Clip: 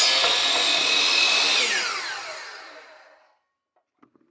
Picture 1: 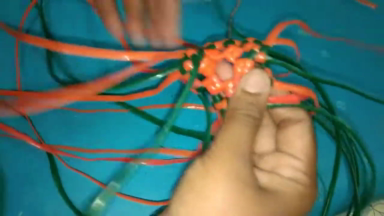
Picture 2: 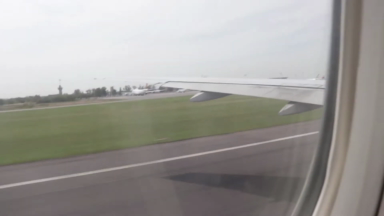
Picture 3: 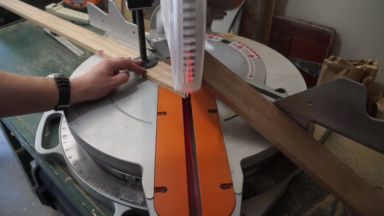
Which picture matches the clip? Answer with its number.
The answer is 3